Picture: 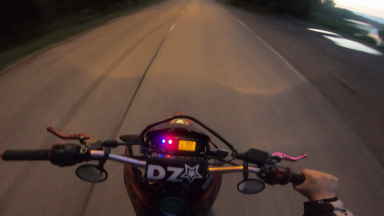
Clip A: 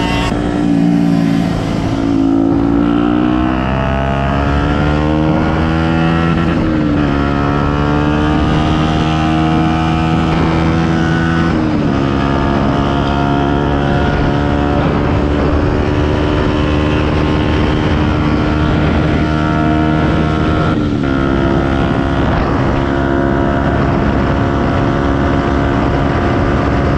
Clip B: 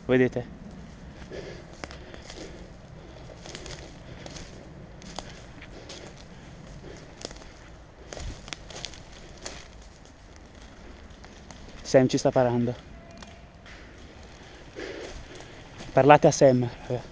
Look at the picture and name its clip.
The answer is A